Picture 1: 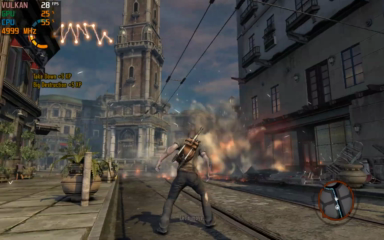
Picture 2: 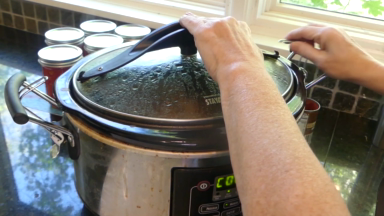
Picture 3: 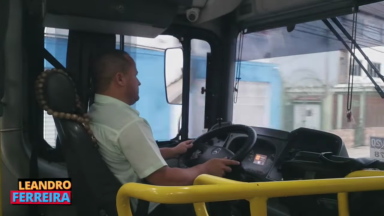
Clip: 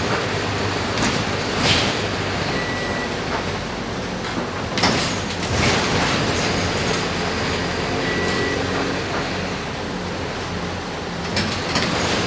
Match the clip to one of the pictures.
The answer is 3